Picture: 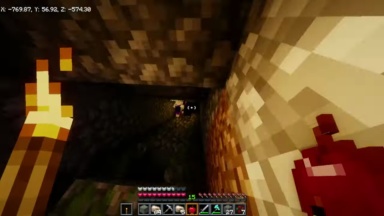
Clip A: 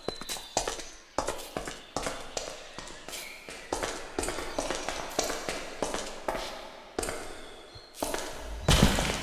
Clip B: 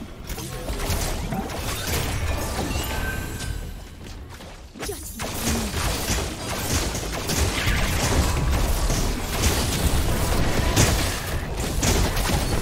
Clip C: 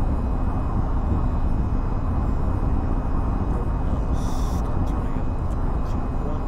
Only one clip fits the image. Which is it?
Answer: A